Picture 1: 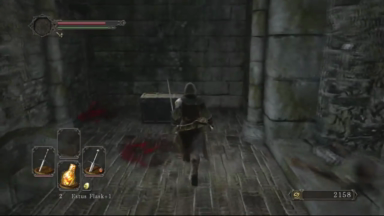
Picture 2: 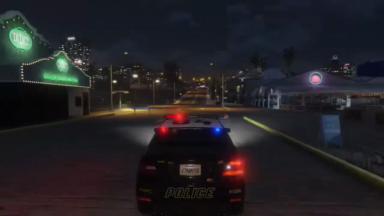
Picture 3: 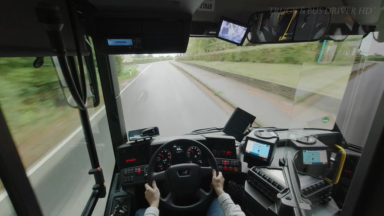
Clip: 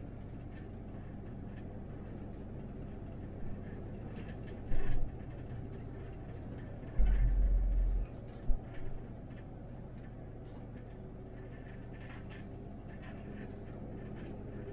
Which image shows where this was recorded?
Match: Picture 3